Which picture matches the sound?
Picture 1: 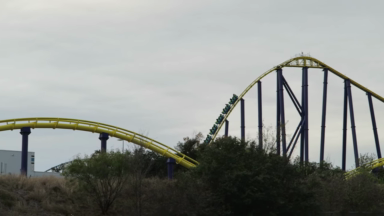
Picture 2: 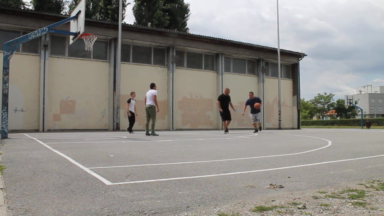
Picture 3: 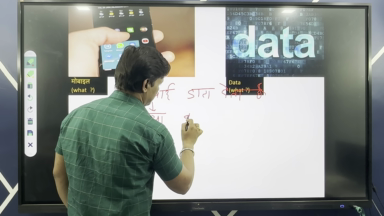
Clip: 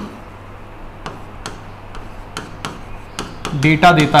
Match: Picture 3